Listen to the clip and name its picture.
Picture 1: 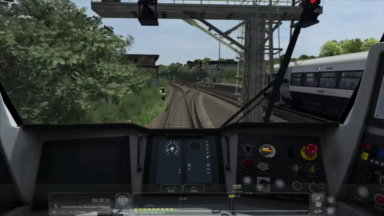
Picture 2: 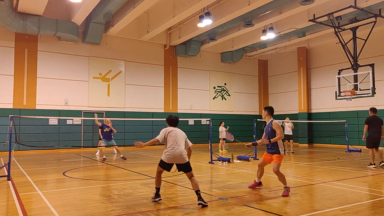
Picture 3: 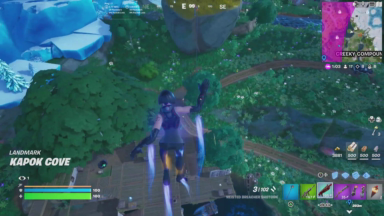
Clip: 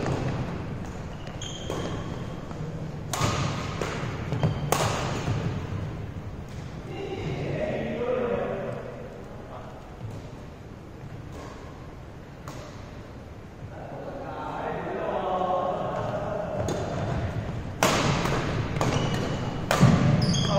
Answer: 2